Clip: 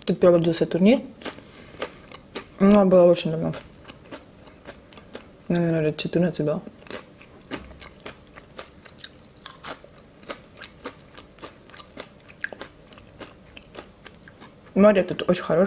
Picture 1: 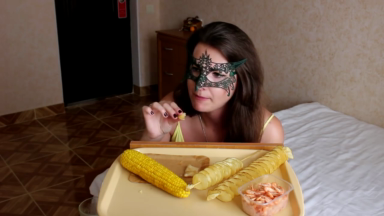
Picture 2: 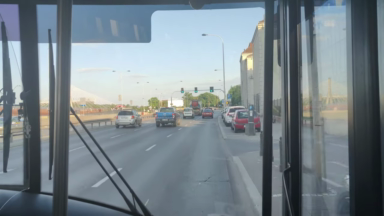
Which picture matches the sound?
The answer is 1